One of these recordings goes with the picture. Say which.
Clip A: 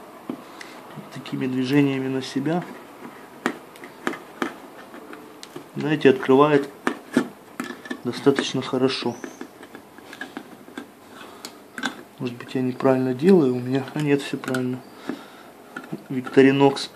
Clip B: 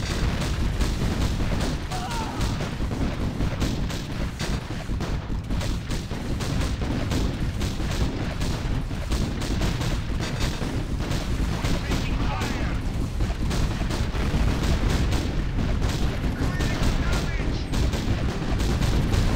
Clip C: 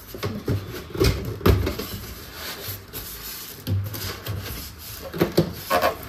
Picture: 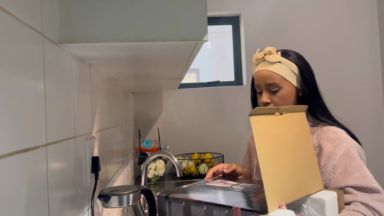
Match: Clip C